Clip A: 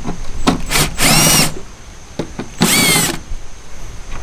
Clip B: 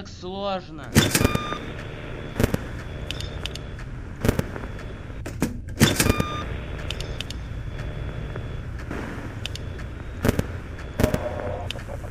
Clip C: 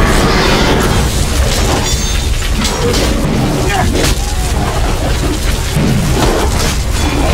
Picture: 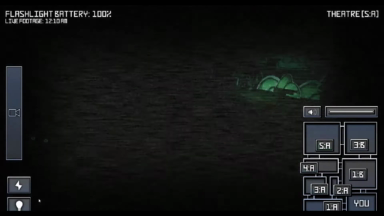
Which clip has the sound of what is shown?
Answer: B